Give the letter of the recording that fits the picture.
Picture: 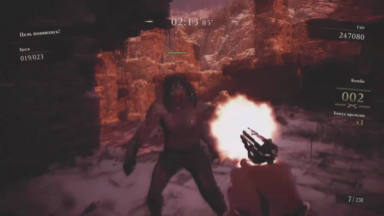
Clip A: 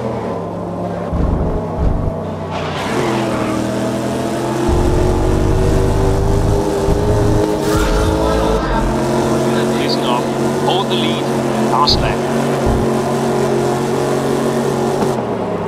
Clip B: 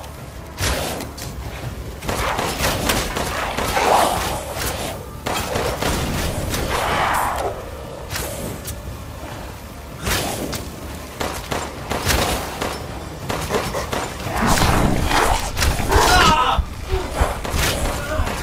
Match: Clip B